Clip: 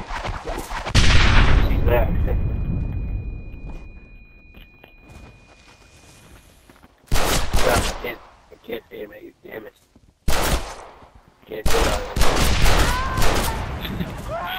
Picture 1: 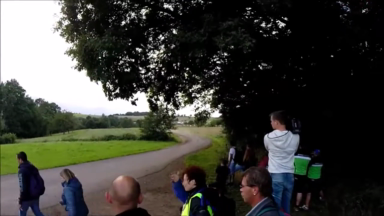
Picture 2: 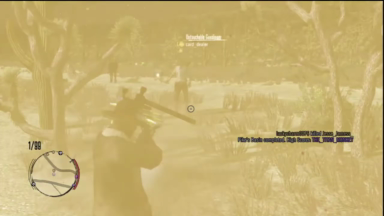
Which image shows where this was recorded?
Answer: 2